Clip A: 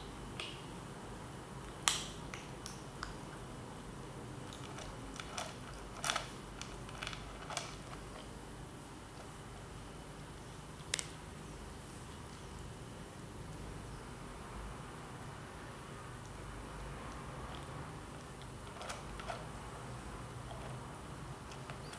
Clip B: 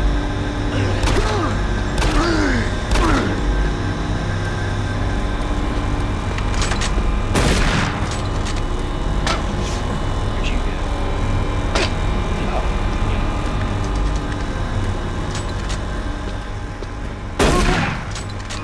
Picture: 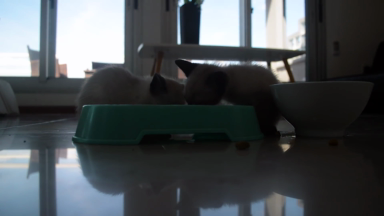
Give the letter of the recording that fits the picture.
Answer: A